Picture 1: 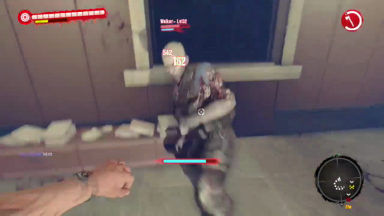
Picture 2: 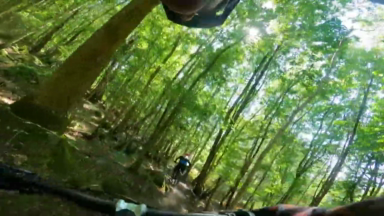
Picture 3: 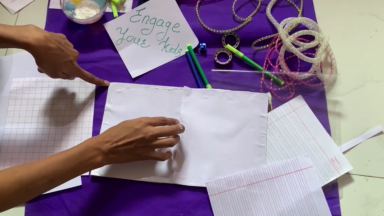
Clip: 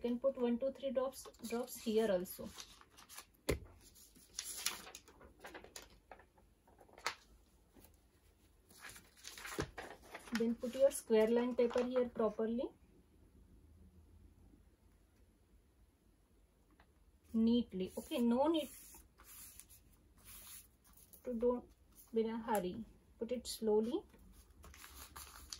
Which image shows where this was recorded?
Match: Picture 3